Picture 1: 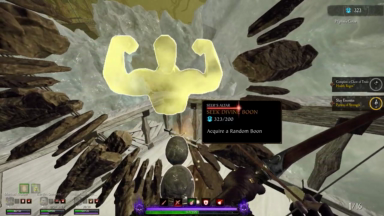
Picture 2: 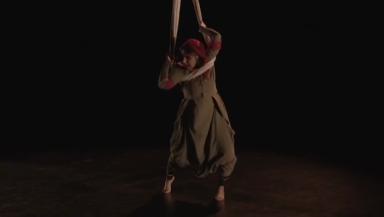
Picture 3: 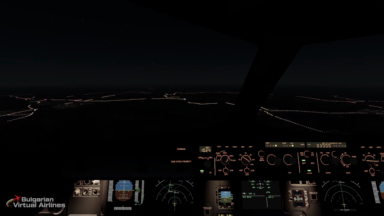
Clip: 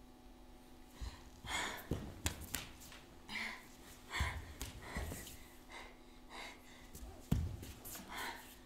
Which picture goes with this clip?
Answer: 2